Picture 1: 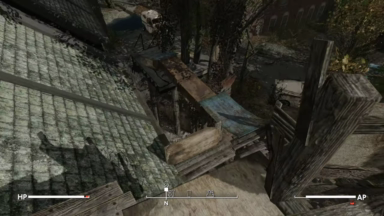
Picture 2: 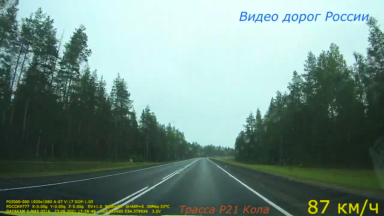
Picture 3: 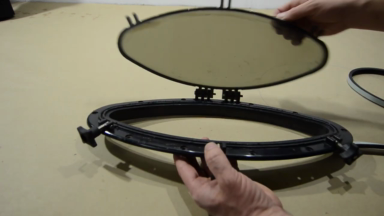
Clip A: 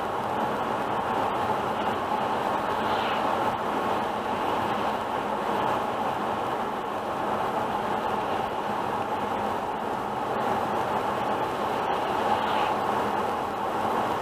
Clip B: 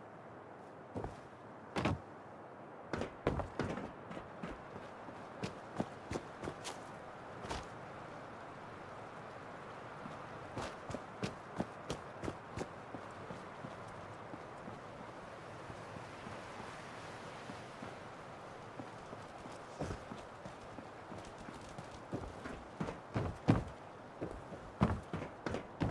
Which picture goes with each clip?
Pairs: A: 2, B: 1